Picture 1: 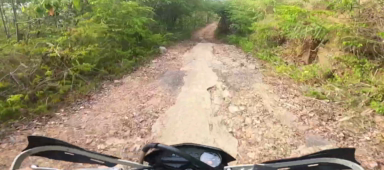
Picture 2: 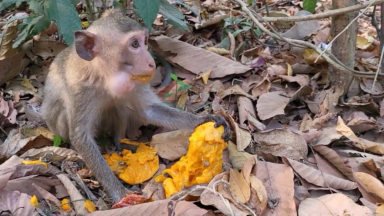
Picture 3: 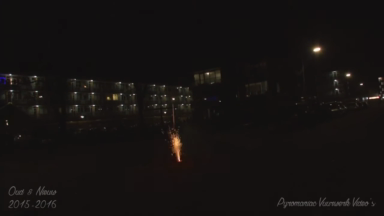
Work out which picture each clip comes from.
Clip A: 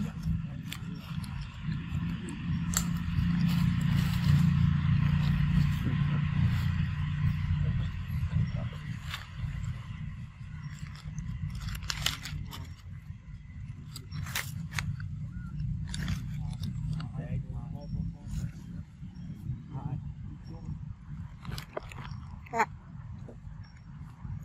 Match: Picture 2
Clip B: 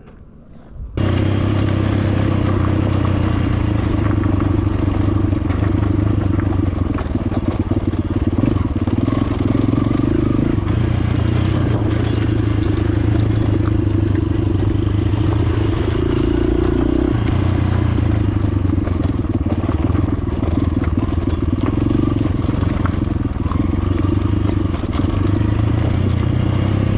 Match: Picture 1